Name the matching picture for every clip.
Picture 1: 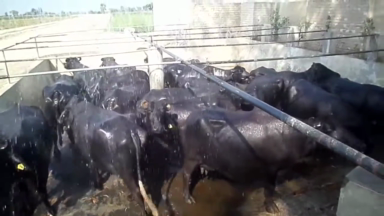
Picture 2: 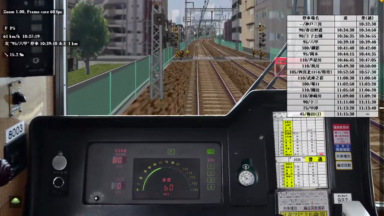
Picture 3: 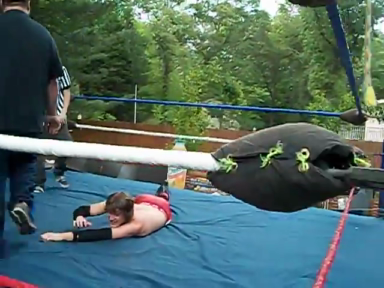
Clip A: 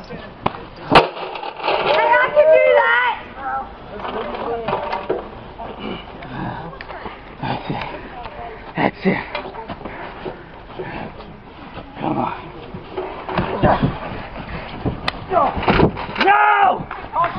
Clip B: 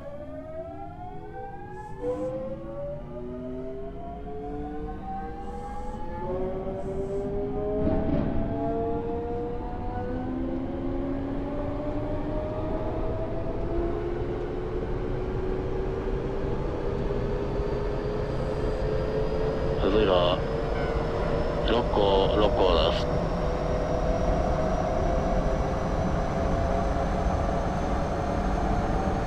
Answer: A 3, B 2